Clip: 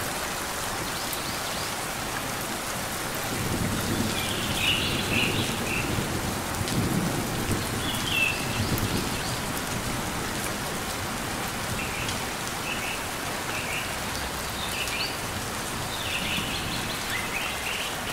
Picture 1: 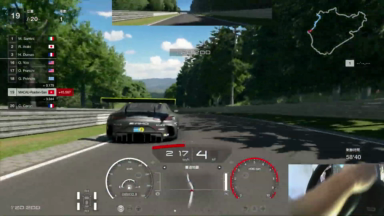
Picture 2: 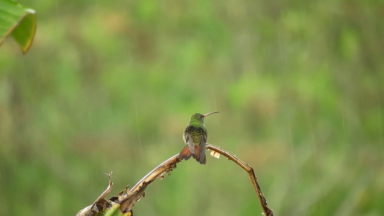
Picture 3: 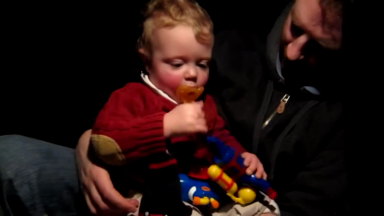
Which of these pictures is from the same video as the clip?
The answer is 2